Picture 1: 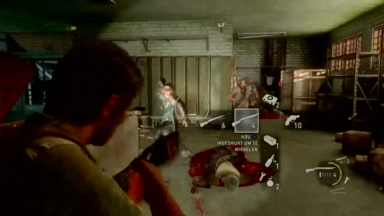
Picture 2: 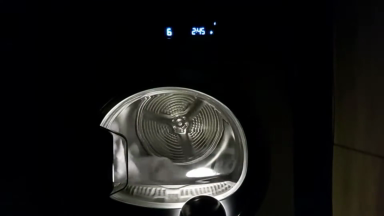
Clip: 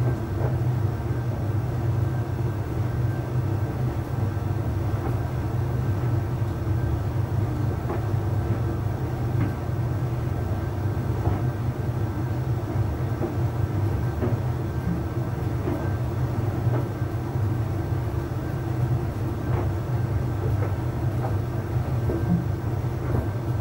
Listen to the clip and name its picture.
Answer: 2